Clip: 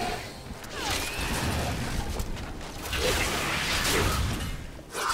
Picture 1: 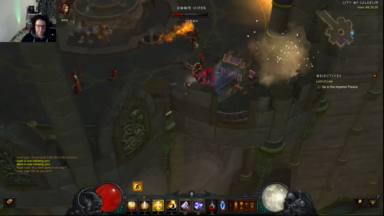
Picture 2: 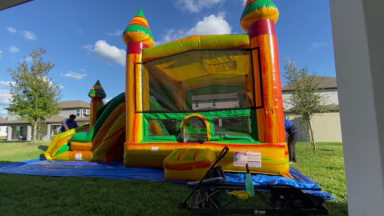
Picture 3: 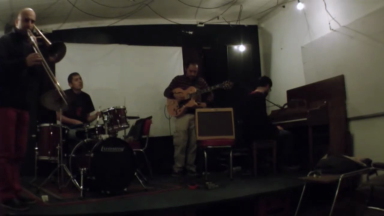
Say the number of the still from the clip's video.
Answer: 1